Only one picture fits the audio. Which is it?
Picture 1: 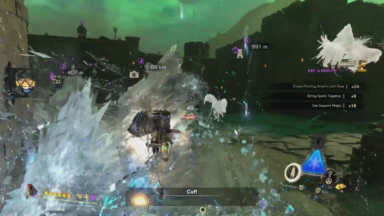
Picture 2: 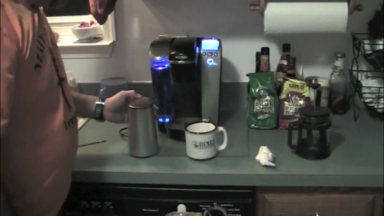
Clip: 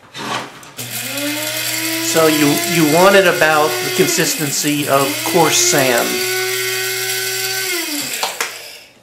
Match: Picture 2